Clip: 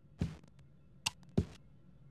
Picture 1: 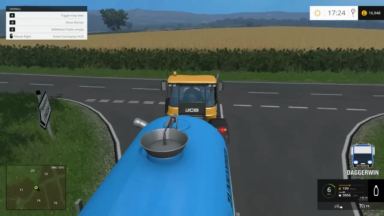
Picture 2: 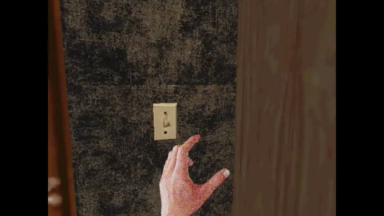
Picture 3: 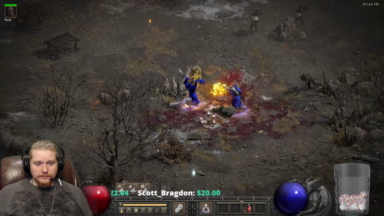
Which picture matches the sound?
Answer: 2